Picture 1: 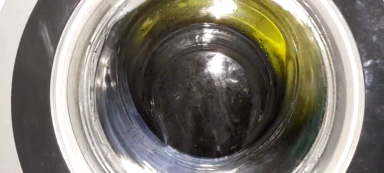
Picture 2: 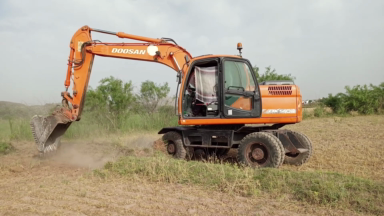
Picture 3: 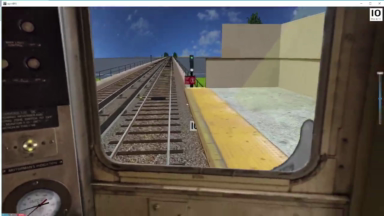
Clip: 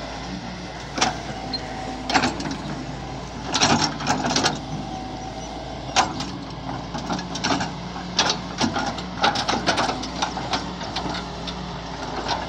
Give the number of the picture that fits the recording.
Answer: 2